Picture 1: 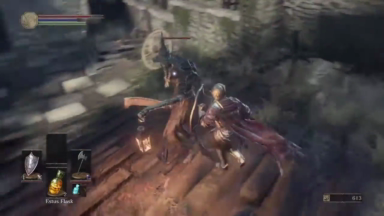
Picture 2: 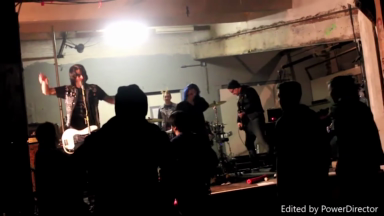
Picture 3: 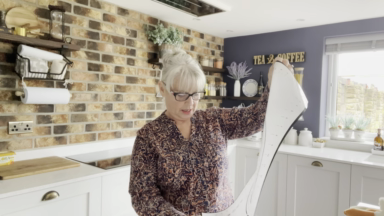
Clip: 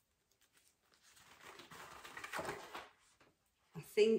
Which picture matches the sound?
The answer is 3